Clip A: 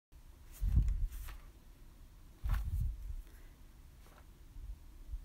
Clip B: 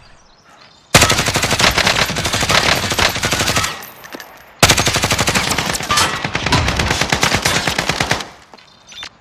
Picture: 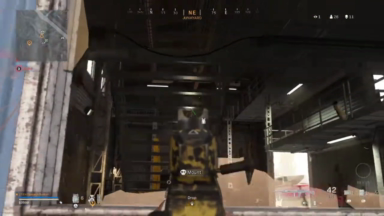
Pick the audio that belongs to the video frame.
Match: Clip B